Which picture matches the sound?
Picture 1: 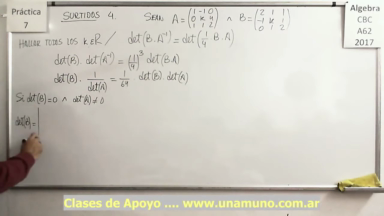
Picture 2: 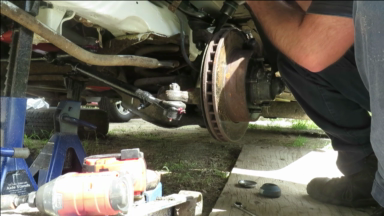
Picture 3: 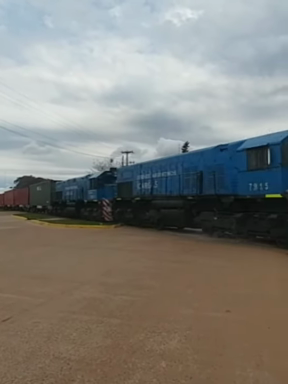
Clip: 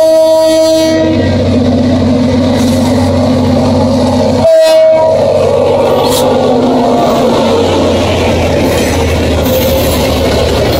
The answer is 3